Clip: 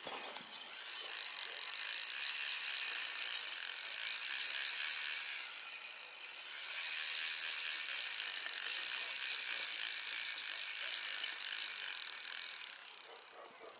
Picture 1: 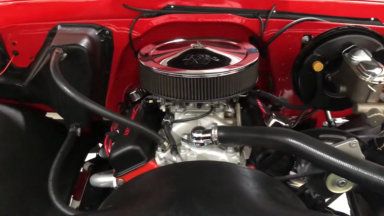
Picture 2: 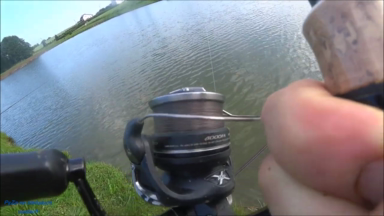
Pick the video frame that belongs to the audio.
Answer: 2